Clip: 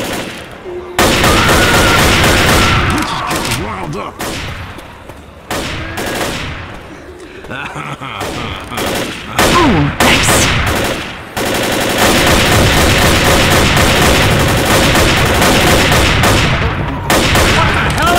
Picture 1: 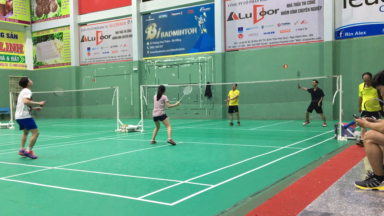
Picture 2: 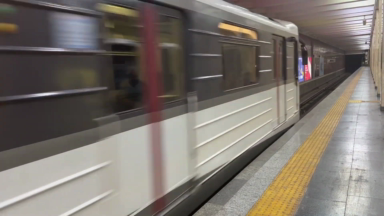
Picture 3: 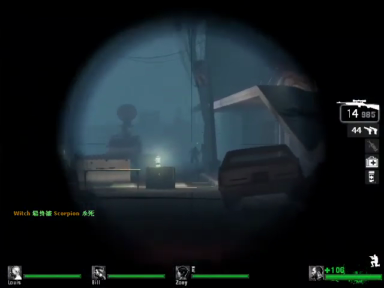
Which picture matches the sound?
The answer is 3